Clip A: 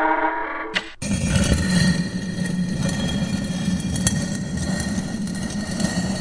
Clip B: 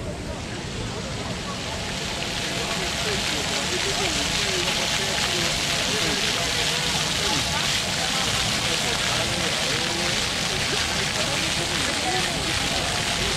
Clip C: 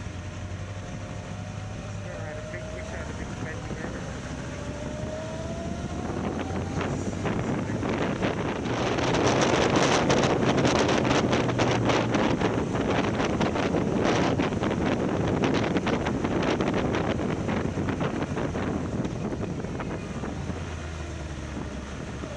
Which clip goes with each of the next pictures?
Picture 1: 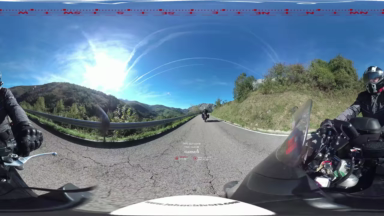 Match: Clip C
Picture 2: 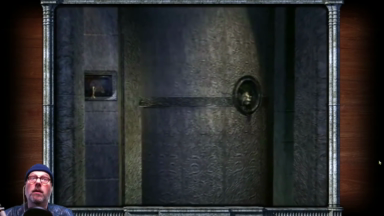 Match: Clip A